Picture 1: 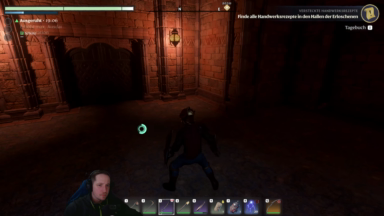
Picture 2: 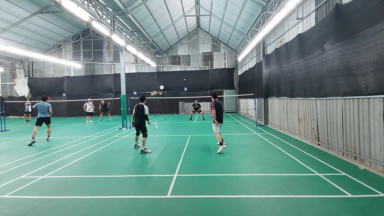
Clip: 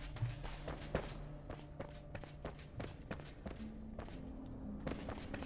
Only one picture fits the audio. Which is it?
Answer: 1